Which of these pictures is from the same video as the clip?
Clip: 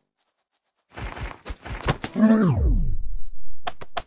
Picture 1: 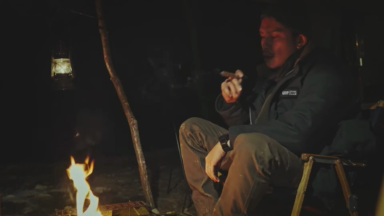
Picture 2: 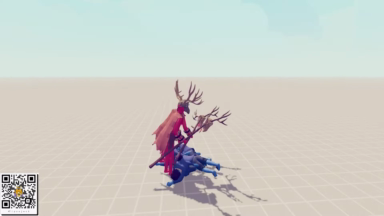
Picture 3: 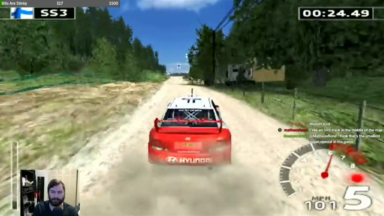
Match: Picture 2